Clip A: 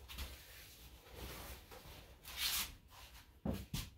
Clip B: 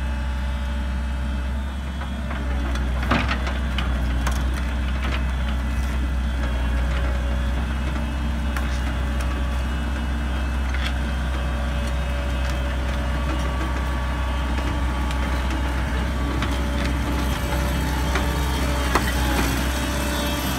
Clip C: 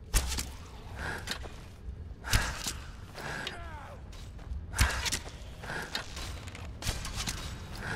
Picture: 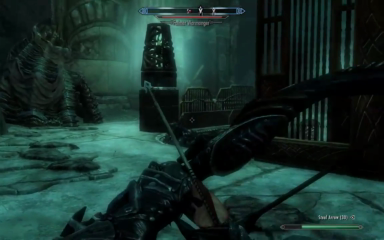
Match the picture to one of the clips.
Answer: C